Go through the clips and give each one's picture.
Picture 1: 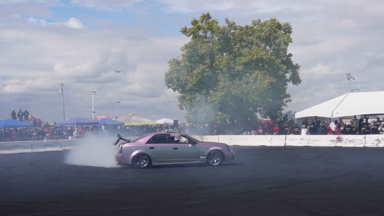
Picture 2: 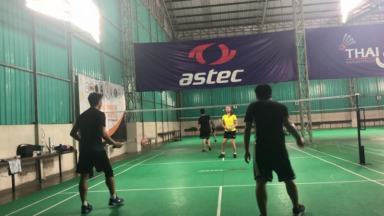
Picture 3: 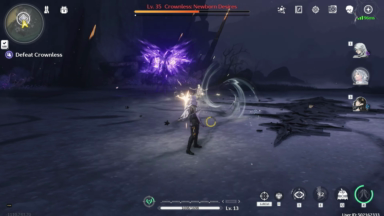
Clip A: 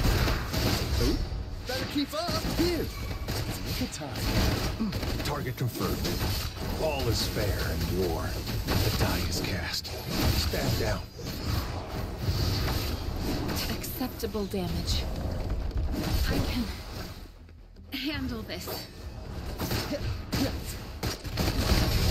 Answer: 3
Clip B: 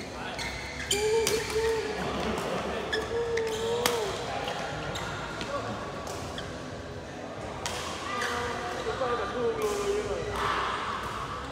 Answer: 2